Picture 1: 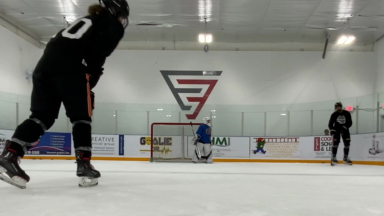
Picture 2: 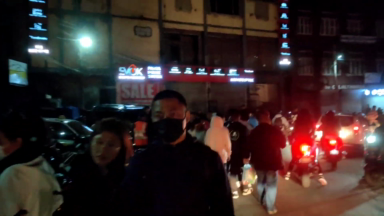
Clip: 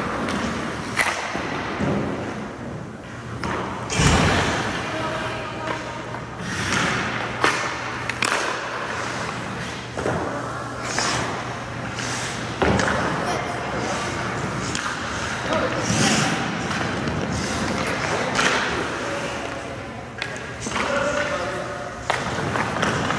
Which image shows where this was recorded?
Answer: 1